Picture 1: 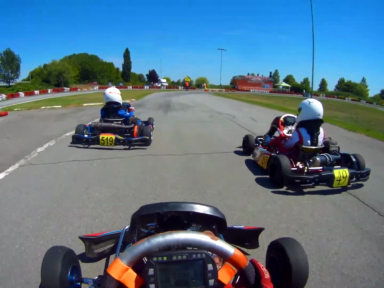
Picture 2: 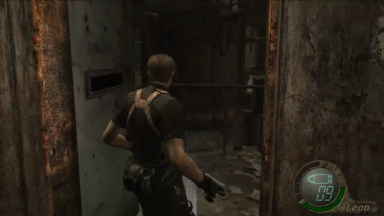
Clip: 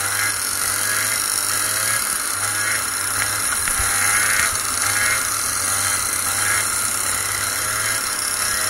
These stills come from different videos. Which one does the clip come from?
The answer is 1